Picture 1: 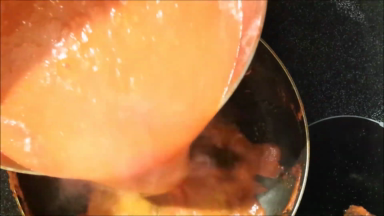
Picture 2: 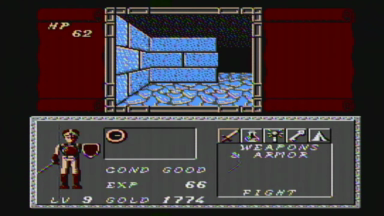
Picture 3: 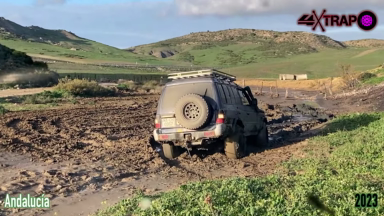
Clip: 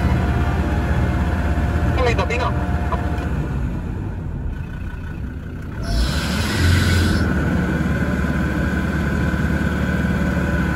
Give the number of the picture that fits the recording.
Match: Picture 3